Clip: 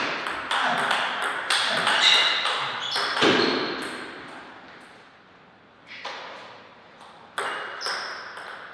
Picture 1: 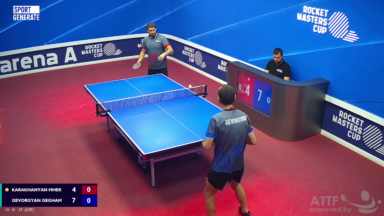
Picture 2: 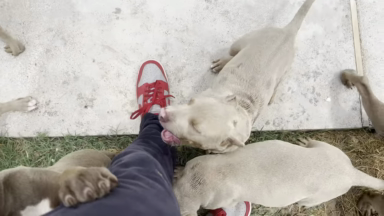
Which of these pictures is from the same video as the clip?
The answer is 1